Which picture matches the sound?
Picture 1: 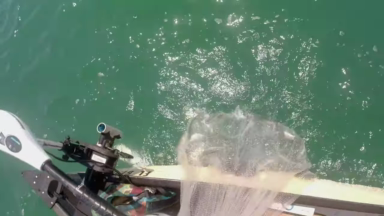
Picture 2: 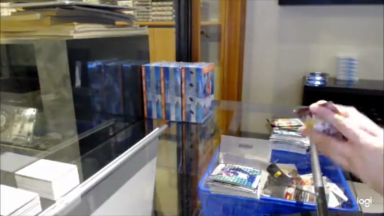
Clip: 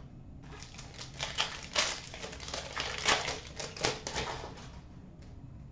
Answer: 2